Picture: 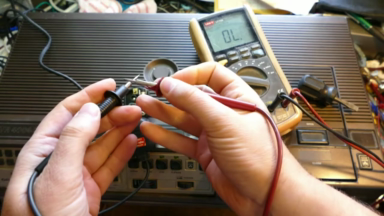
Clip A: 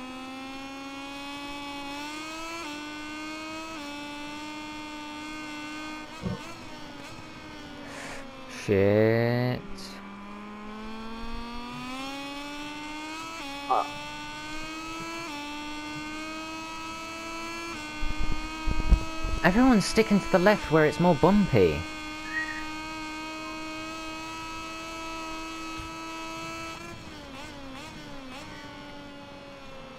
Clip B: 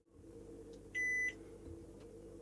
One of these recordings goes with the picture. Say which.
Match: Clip B